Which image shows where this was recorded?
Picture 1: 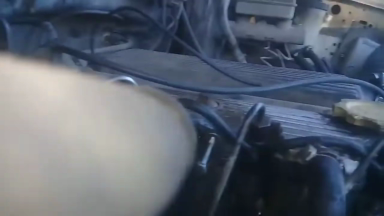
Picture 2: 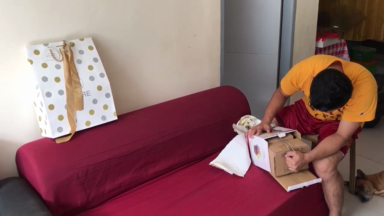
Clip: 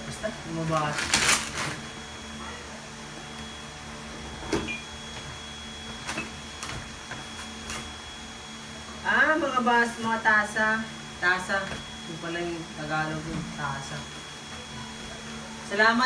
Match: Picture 2